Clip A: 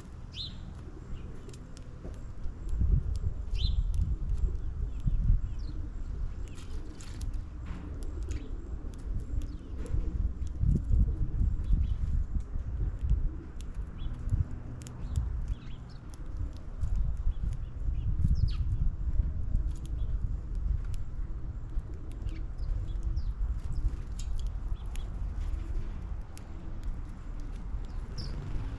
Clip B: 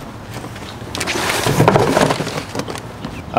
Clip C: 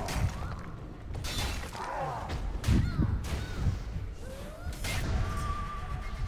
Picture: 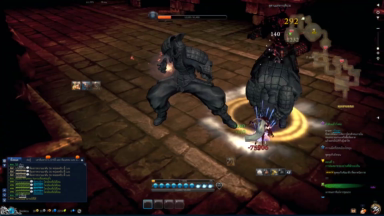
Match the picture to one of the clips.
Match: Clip C